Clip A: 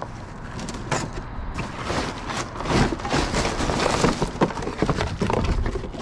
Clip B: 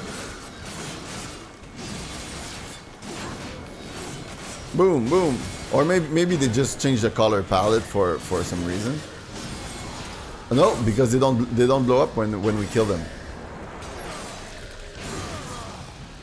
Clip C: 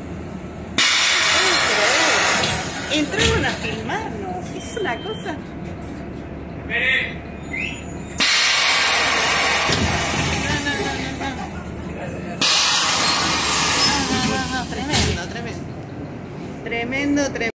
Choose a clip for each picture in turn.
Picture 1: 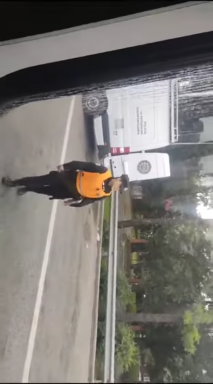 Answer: C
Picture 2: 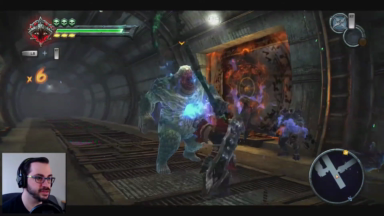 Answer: B